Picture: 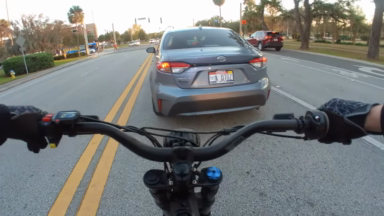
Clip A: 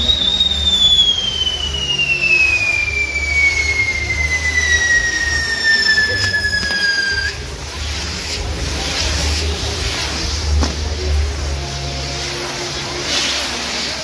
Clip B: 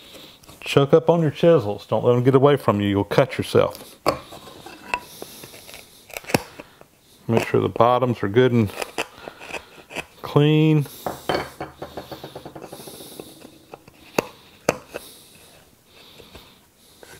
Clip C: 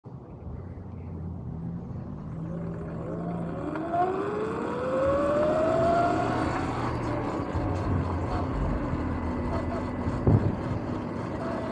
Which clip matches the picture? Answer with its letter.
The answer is C